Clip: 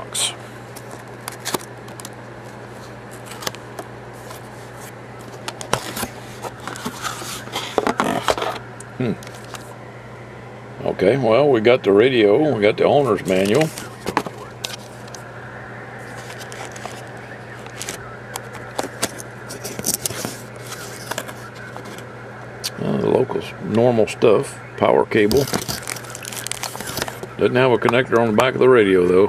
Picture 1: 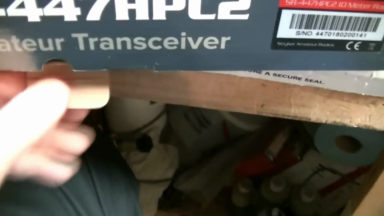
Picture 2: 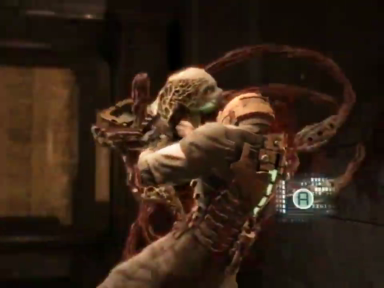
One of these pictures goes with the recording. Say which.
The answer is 1